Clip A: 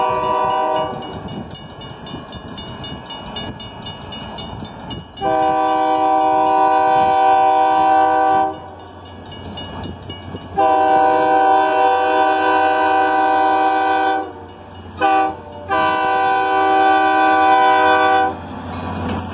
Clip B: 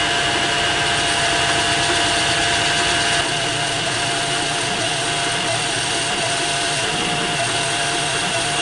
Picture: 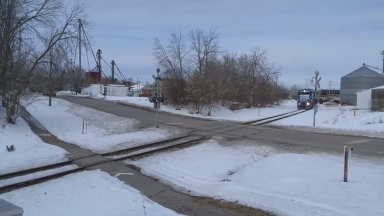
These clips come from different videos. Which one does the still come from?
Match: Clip A